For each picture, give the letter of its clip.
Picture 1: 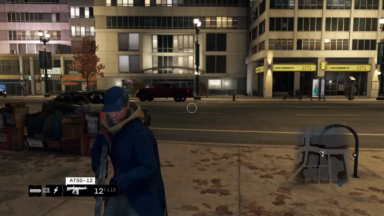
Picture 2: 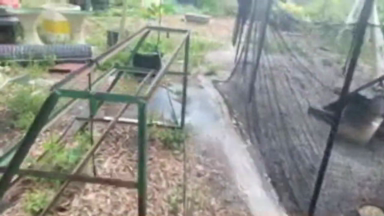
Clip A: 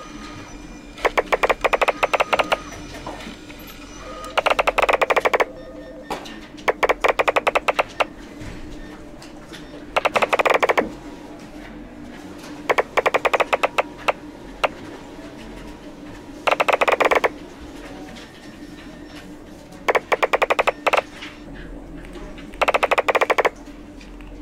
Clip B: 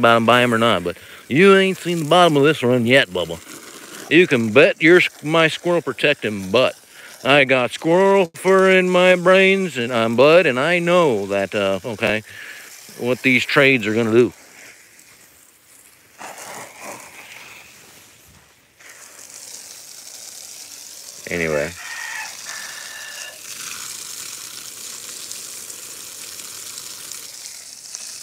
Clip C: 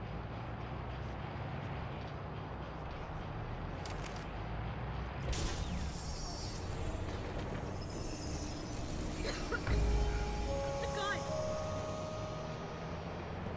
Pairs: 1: C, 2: B